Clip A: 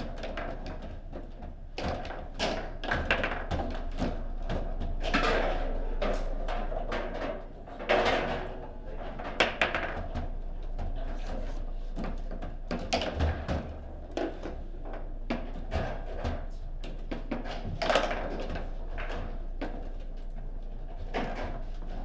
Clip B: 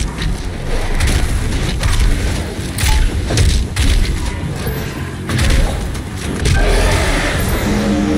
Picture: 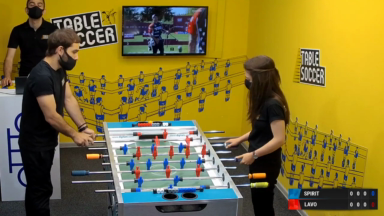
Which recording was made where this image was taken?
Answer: A